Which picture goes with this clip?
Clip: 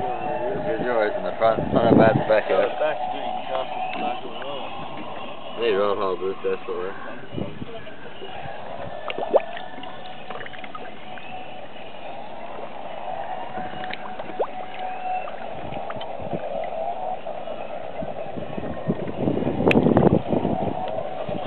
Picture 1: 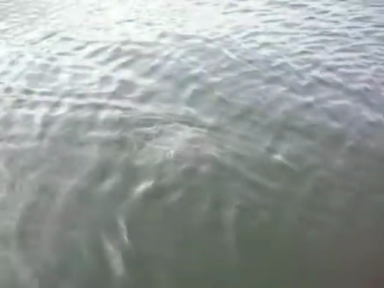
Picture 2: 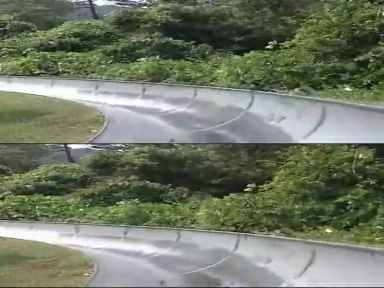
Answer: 1